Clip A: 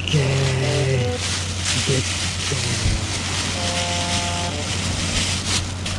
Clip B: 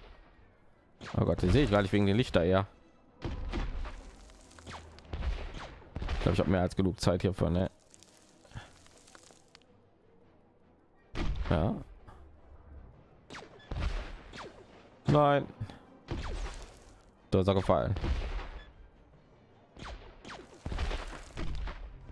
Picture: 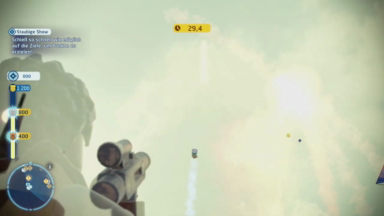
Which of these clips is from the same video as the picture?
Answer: B